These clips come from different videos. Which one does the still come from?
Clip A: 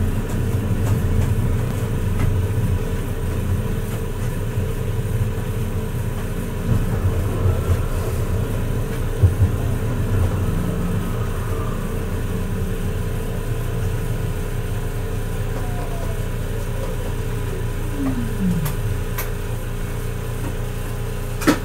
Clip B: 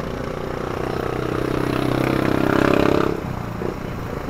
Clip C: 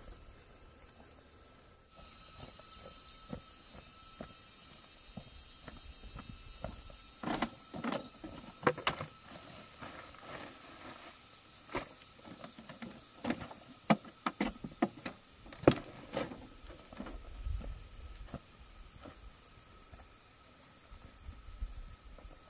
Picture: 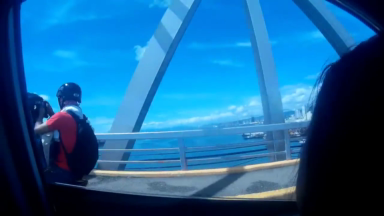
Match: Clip B